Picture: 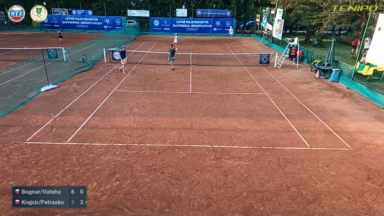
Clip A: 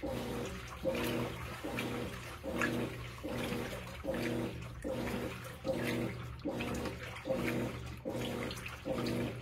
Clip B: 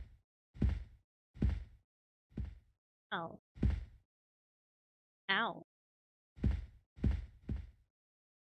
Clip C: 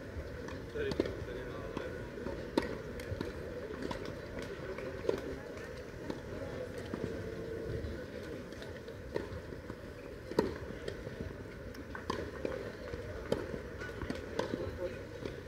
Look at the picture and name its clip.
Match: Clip C